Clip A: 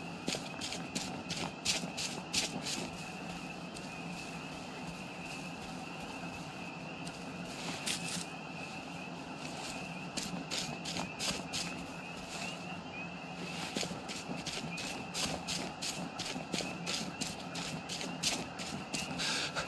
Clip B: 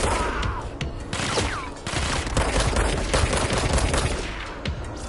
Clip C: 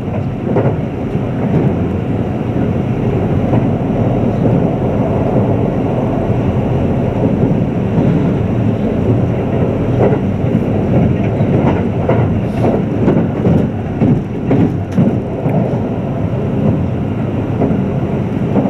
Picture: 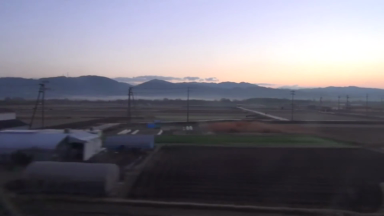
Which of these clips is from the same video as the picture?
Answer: C